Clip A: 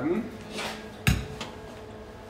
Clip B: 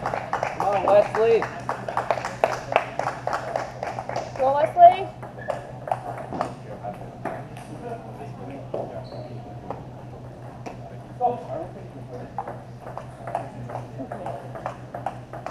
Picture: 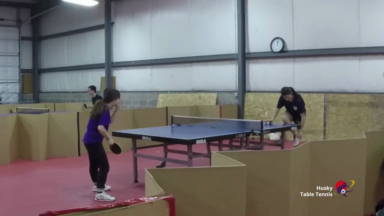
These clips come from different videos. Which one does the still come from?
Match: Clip B